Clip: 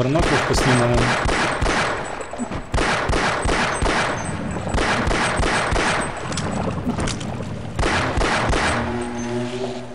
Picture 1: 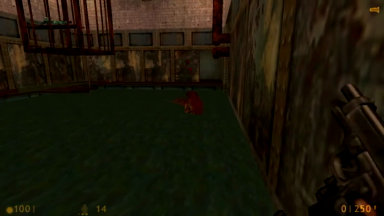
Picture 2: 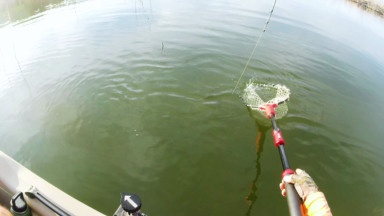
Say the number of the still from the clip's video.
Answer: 1